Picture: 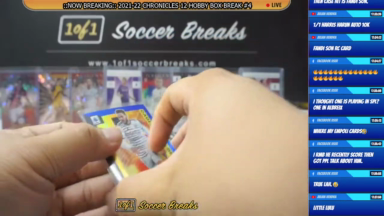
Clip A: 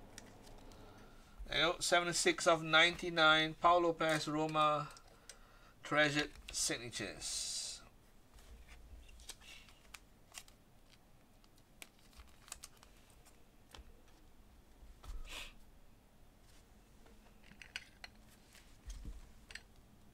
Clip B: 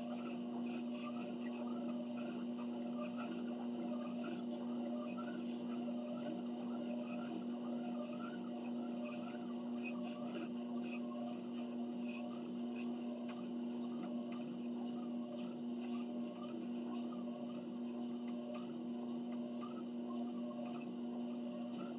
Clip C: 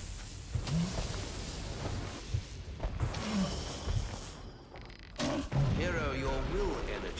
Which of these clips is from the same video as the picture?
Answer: A